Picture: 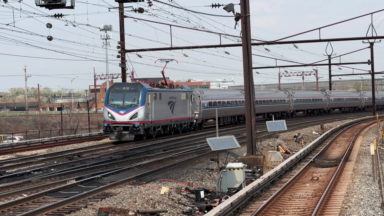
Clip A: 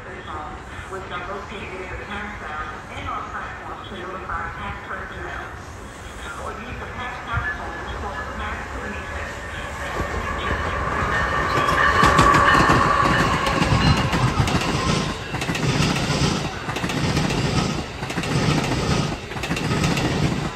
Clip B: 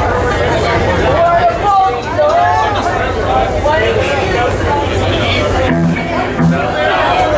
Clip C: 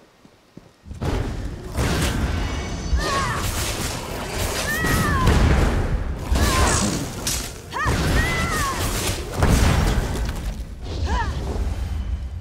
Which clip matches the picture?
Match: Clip A